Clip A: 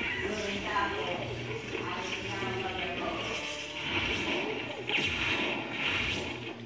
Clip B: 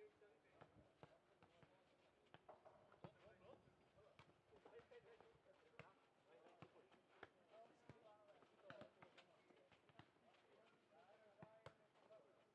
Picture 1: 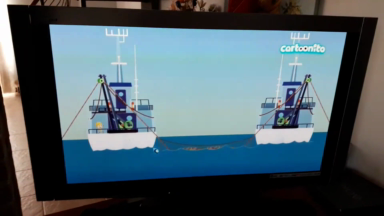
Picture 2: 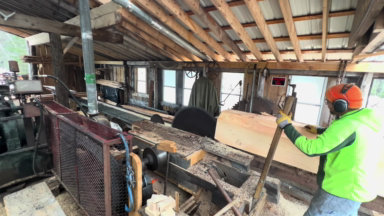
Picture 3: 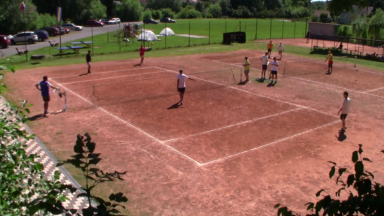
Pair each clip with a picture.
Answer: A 1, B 3